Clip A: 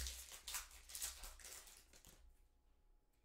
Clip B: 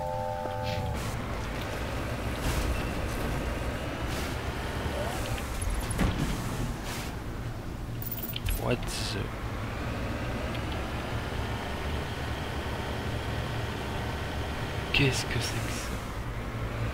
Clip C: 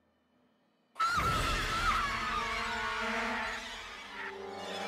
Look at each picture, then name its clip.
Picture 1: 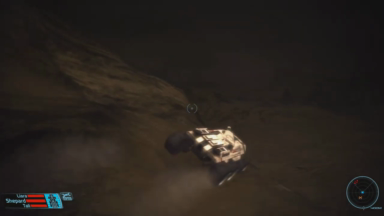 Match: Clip B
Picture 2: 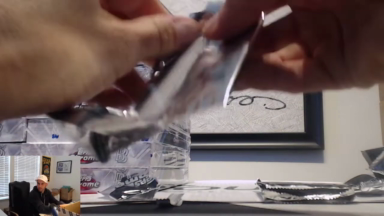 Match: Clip A